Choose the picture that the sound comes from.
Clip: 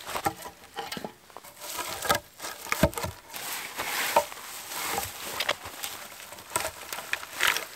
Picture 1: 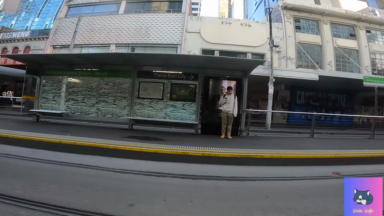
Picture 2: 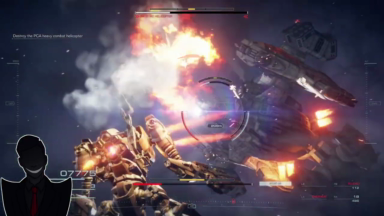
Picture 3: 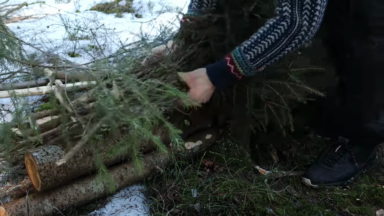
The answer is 3